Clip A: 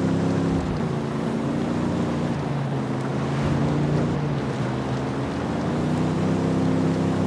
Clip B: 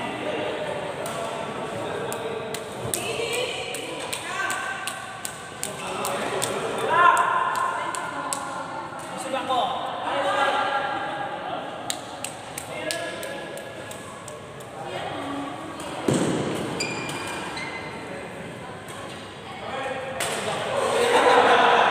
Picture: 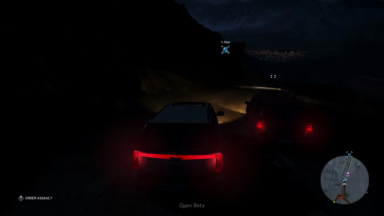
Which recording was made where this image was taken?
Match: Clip A